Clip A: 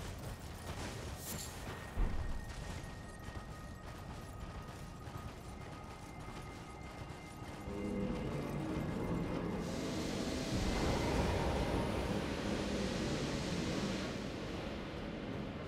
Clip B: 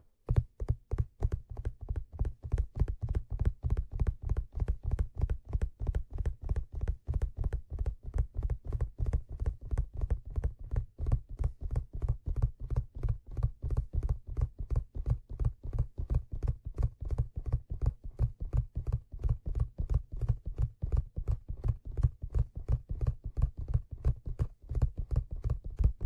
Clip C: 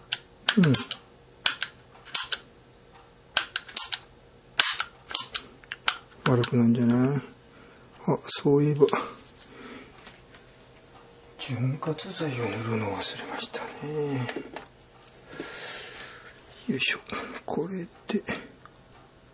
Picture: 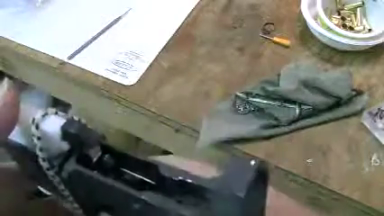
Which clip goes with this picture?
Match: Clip C